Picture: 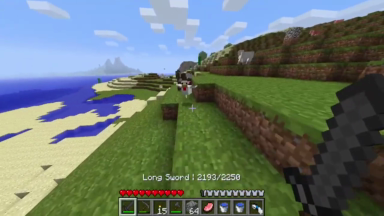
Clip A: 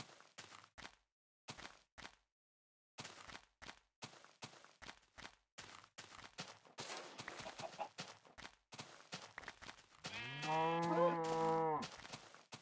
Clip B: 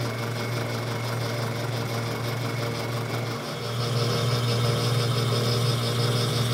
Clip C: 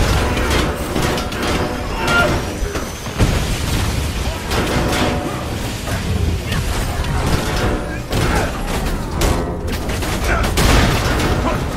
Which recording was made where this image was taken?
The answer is A